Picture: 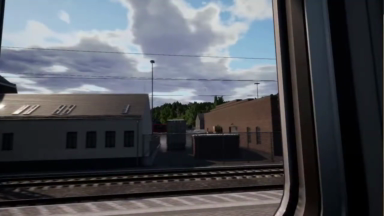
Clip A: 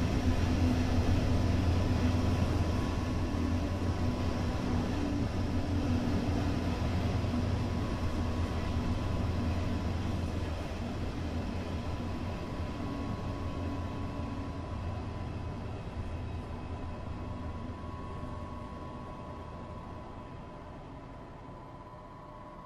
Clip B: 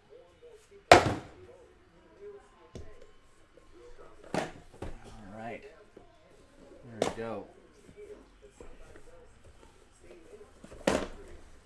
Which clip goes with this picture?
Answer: A